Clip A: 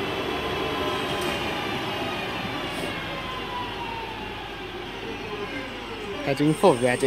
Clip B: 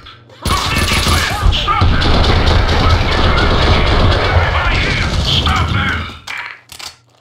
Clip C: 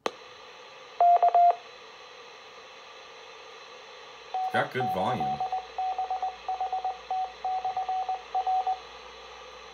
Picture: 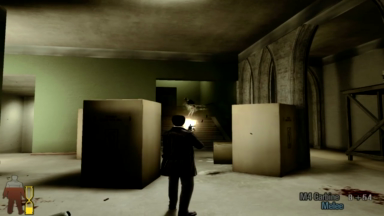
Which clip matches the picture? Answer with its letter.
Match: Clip B